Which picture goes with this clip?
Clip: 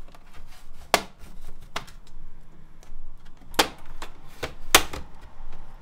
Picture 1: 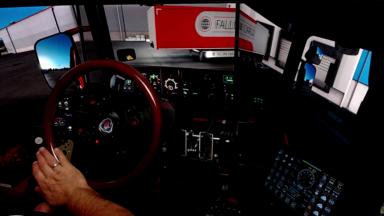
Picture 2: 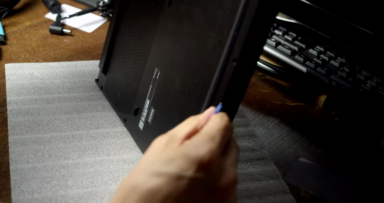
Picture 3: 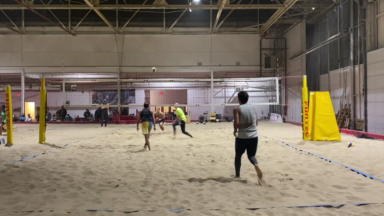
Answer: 2